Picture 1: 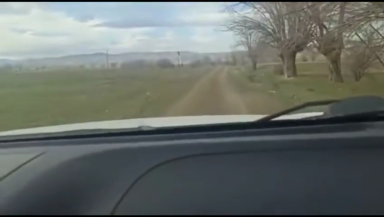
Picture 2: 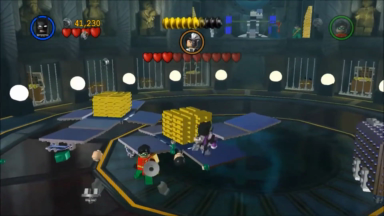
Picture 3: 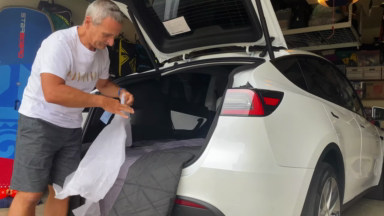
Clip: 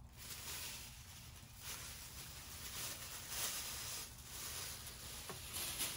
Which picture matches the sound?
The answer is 3